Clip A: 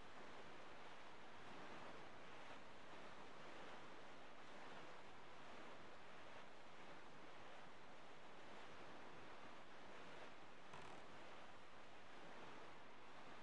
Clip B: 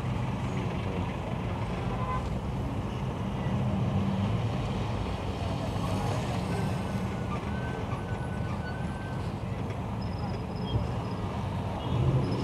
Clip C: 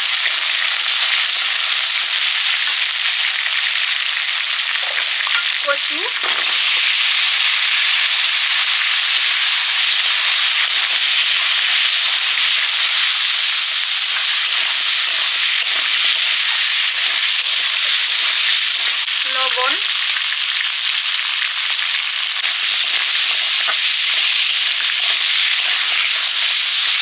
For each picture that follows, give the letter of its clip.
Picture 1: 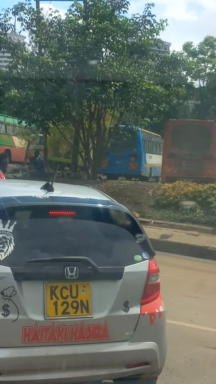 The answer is B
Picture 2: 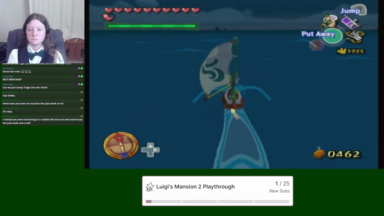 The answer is A